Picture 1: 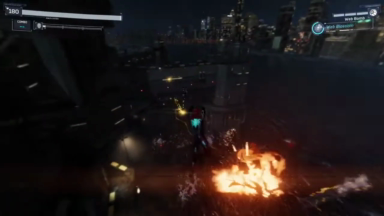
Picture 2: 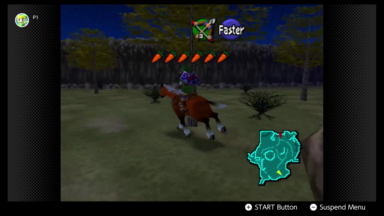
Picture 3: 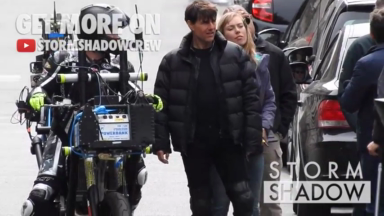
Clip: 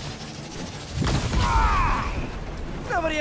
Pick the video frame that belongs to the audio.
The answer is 1